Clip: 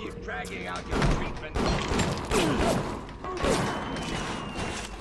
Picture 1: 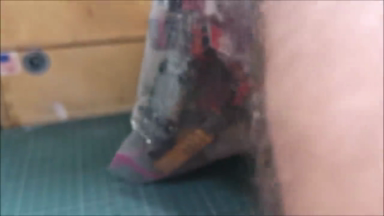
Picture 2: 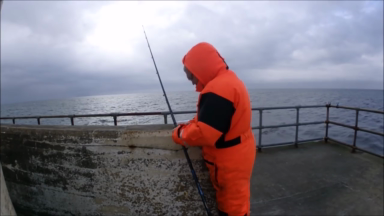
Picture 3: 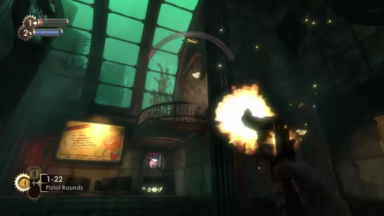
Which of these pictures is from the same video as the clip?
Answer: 3